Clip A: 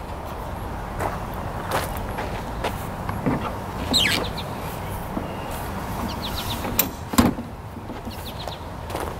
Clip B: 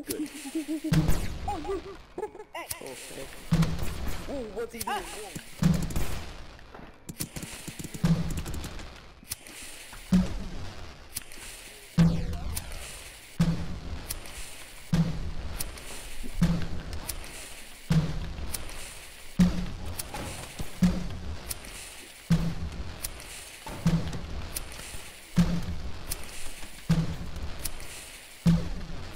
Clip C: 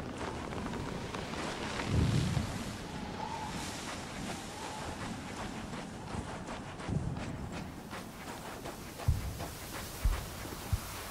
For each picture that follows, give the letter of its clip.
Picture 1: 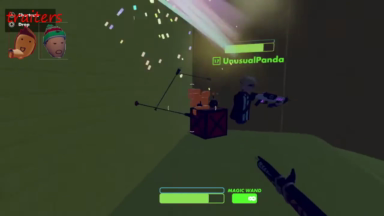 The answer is B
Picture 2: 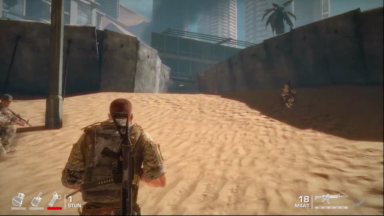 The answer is C